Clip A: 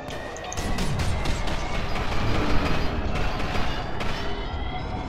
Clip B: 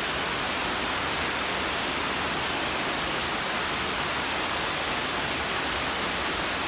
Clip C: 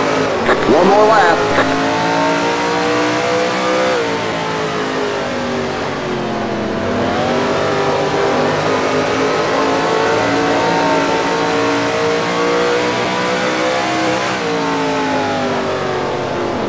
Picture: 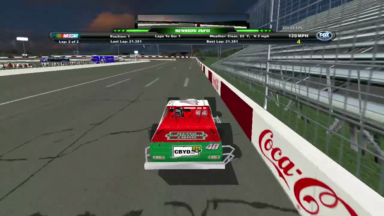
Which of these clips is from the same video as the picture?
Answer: C